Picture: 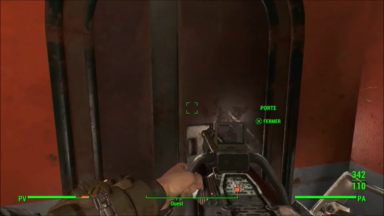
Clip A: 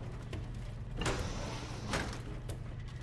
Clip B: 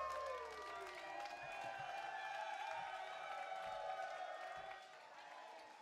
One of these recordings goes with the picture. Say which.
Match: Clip A